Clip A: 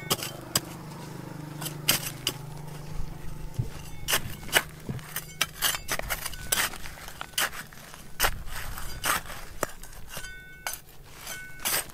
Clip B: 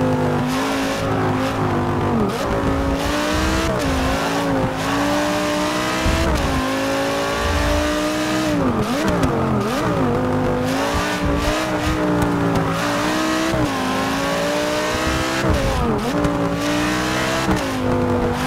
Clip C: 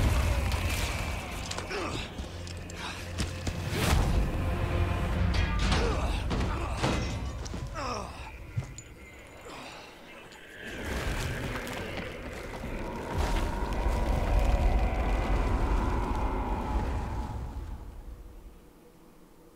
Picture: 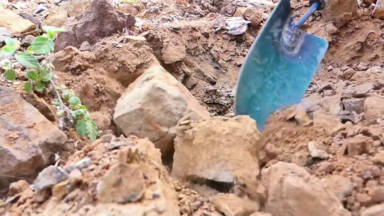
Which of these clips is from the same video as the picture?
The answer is A